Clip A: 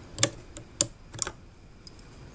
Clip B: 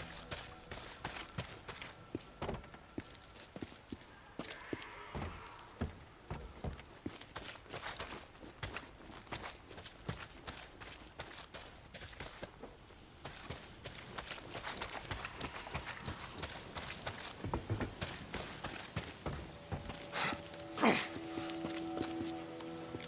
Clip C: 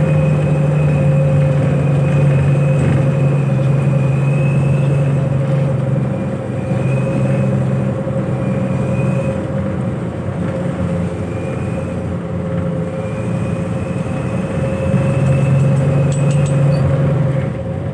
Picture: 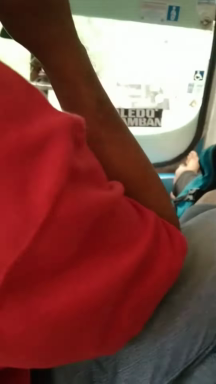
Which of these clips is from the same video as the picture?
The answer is C